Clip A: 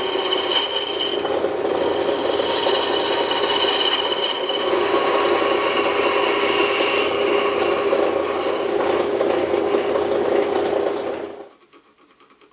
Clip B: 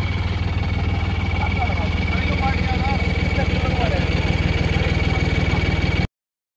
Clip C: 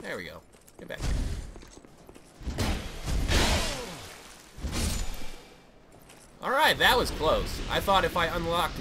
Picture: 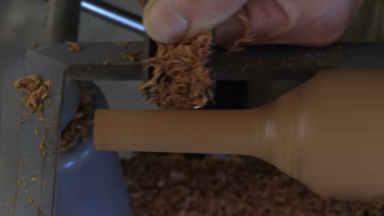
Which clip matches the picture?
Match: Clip A